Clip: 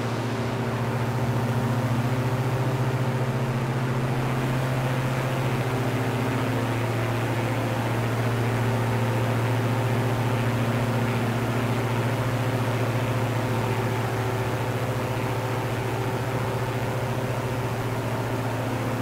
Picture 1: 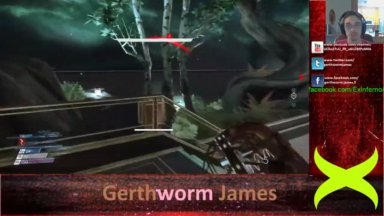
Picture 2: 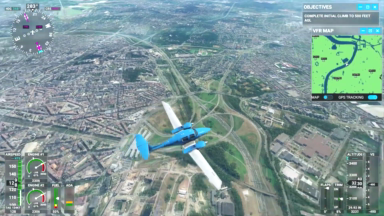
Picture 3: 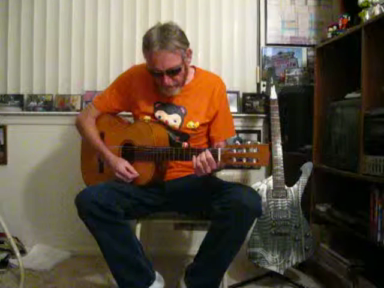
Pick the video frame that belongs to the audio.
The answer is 2